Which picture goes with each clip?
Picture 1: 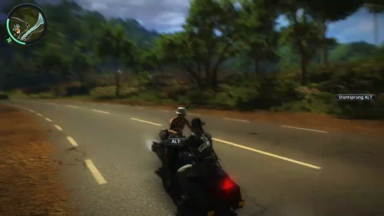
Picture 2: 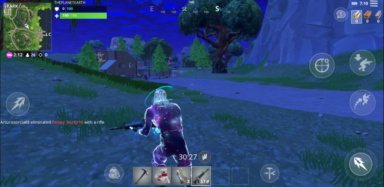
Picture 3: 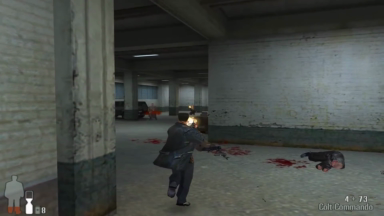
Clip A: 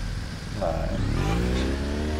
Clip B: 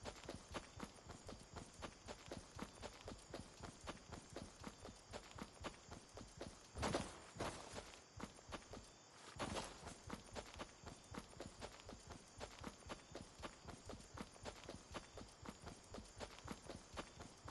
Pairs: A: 1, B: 2